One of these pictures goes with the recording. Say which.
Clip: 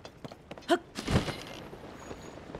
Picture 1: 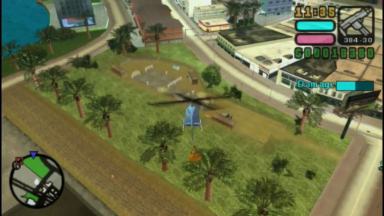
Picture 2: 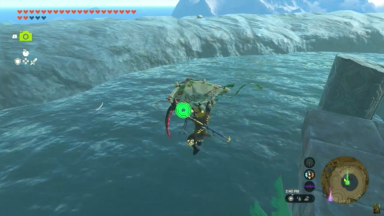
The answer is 2